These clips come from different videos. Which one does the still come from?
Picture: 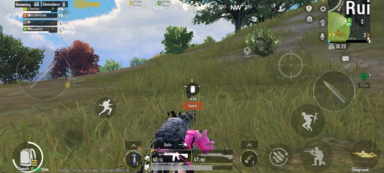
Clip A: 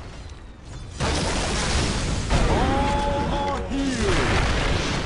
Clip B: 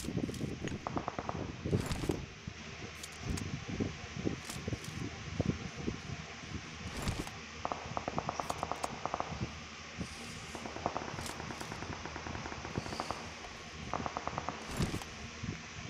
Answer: B